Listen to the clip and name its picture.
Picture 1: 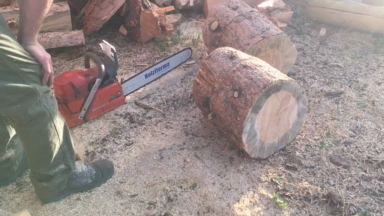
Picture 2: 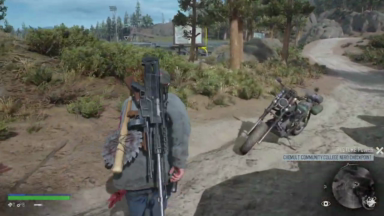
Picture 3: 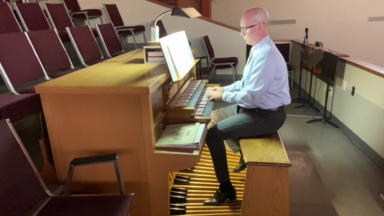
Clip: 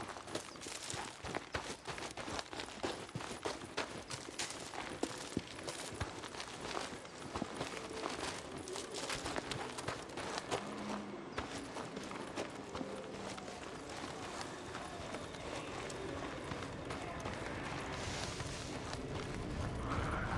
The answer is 2